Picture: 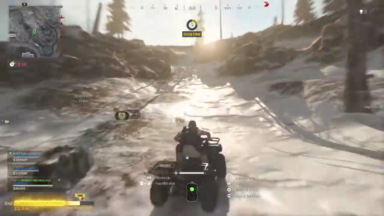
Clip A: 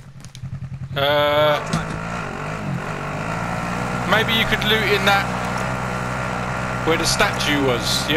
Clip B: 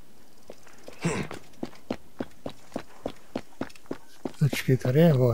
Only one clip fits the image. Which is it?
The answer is A